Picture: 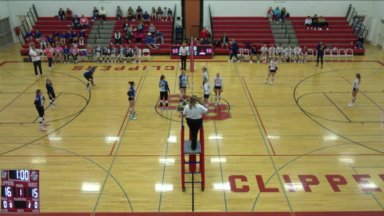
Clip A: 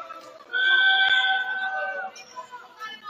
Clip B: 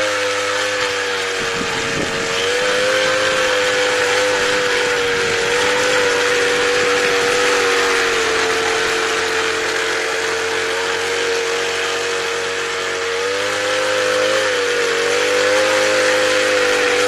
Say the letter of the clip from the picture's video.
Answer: A